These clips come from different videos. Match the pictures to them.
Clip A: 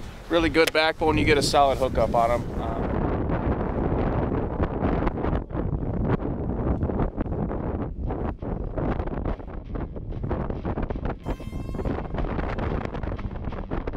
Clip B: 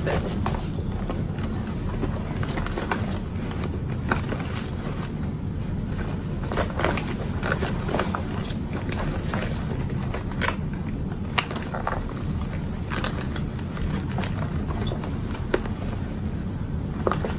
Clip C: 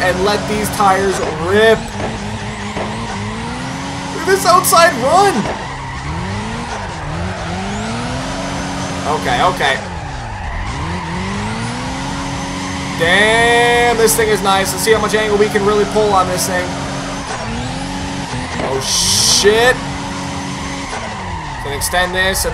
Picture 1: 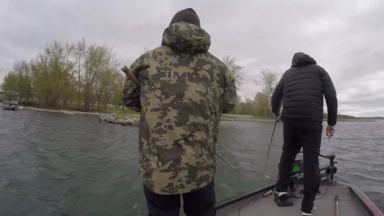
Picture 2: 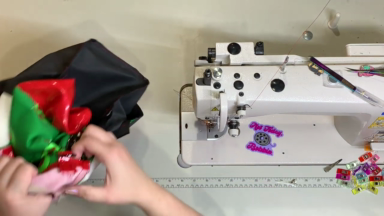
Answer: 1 A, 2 B